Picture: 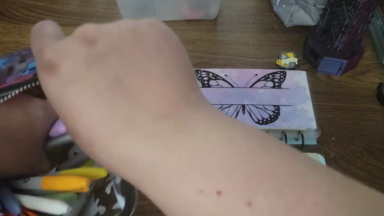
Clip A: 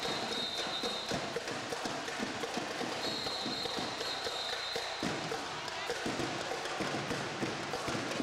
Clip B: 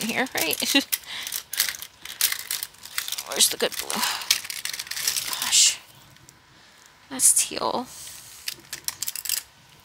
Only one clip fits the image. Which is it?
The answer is B